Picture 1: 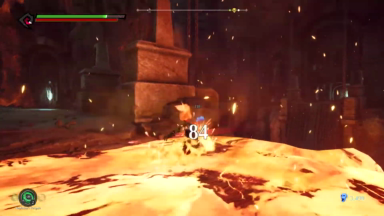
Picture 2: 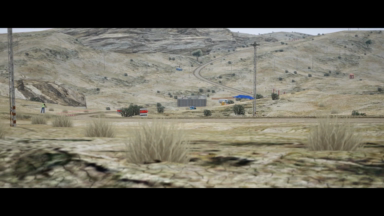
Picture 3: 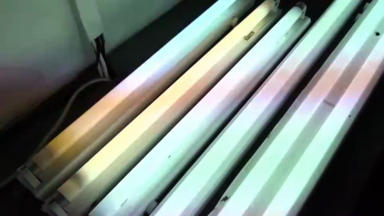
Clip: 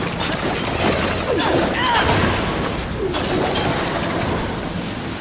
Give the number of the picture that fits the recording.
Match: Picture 1